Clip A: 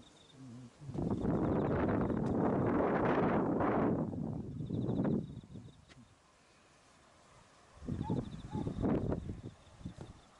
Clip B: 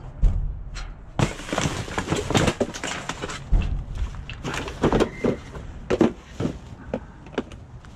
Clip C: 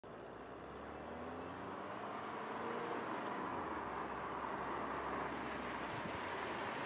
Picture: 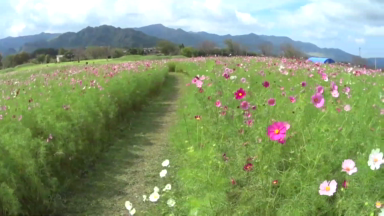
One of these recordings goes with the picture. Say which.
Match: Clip A